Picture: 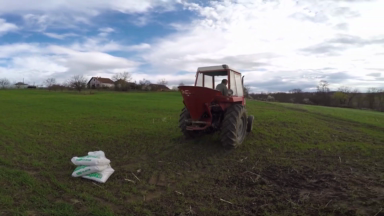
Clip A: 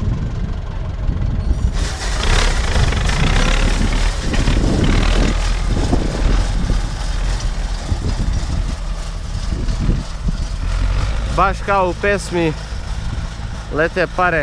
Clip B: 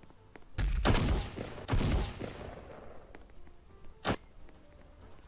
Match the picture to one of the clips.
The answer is A